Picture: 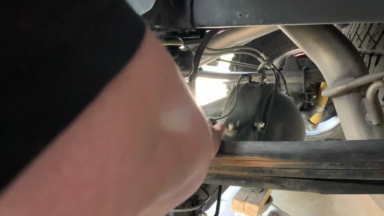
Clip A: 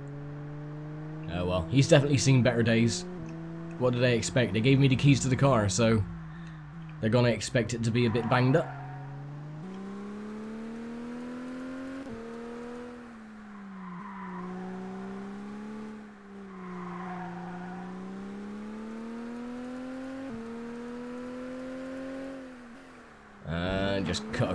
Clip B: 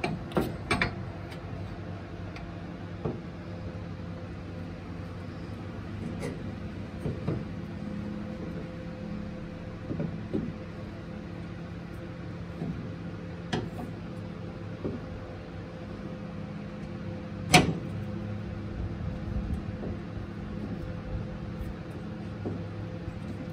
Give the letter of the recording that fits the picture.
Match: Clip B